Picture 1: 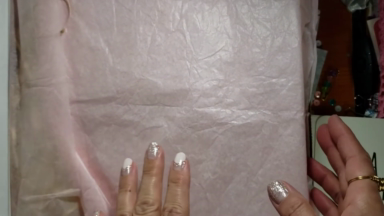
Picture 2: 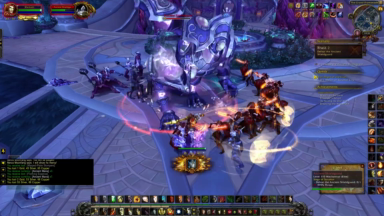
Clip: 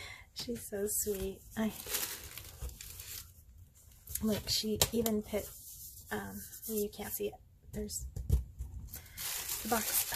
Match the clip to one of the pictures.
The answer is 1